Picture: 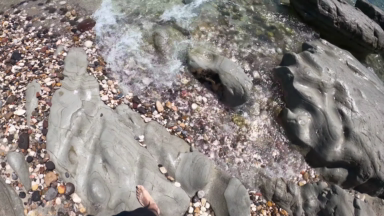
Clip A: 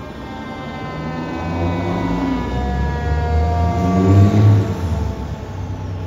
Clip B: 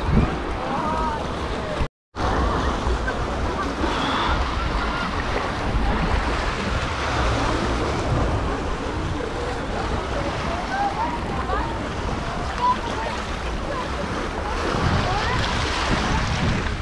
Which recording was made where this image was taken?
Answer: B